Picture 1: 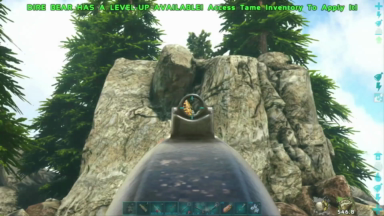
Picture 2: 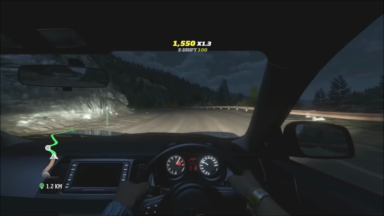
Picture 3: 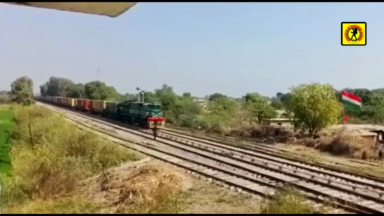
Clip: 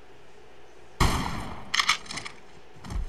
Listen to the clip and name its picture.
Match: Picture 1